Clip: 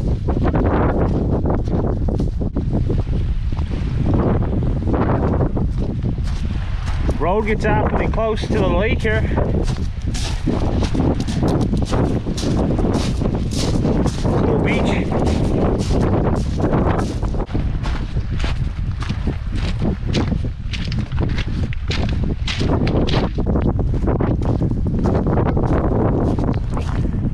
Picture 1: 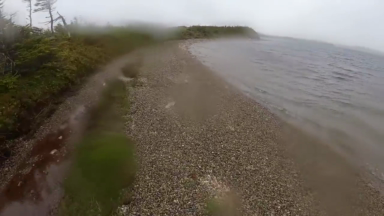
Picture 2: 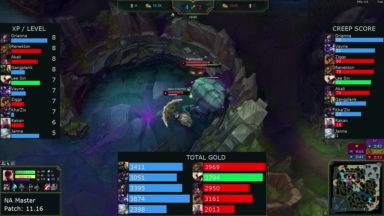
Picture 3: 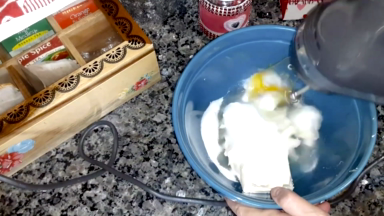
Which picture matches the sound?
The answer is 1